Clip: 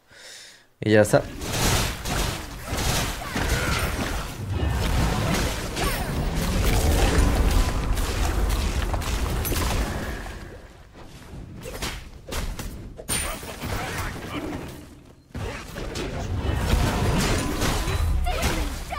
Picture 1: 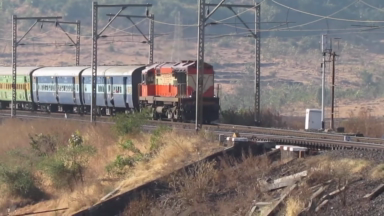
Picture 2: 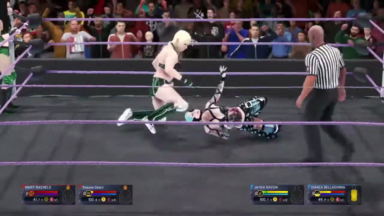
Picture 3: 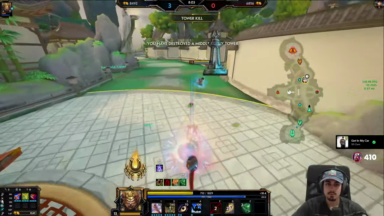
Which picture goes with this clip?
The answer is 3